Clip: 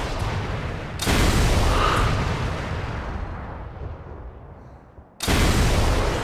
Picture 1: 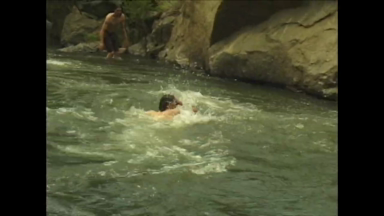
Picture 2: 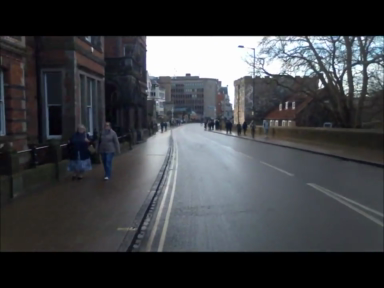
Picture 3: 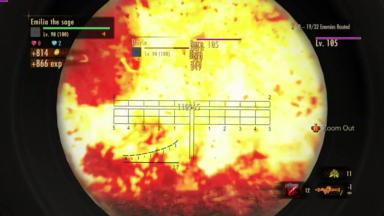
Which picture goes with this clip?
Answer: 3